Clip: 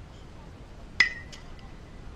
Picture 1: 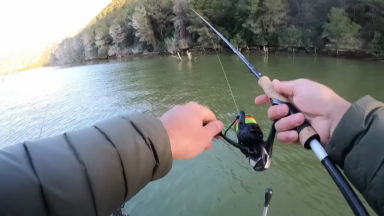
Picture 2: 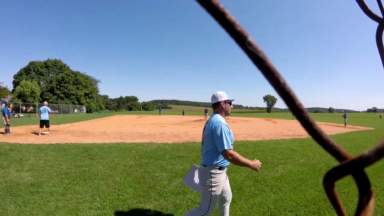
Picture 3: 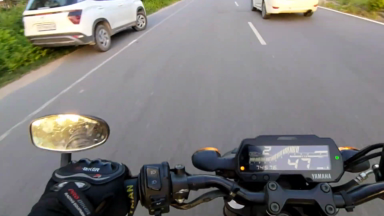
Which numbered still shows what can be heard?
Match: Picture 2